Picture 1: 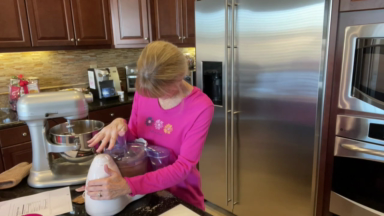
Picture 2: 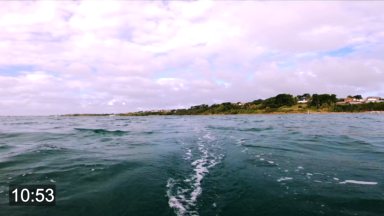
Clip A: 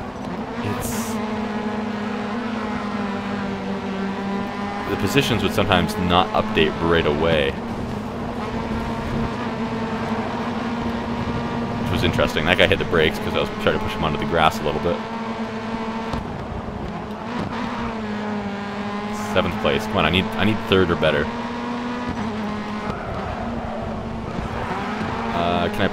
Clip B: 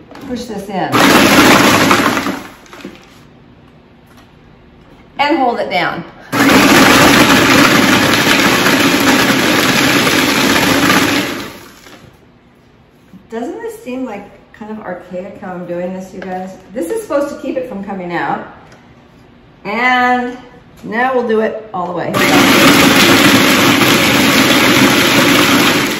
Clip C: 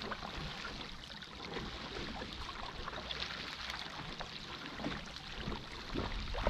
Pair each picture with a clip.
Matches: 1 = B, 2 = C